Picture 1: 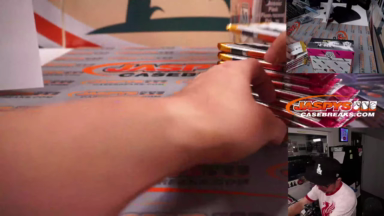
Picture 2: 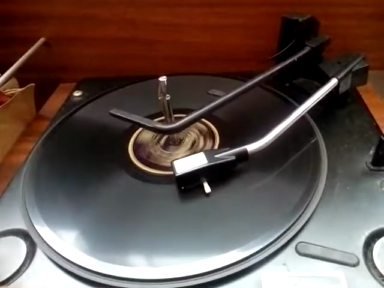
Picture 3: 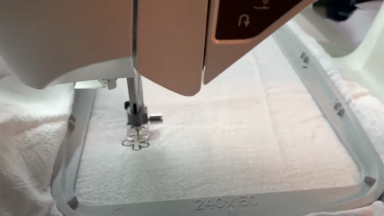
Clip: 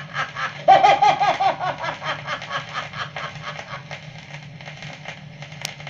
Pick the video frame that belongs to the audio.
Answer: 2